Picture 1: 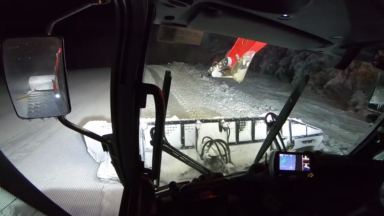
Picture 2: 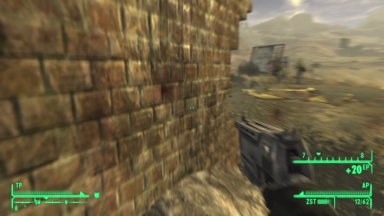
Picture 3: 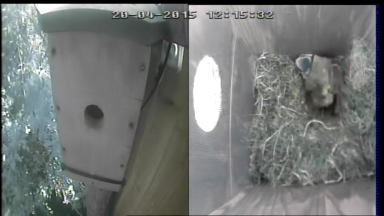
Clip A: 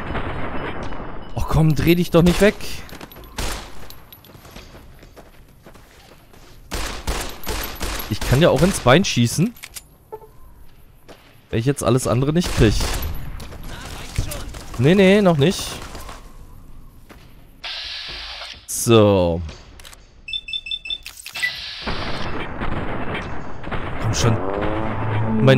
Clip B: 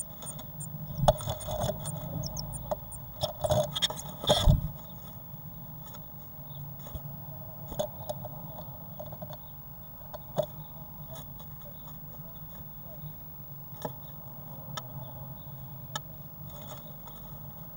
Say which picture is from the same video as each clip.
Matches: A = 2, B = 3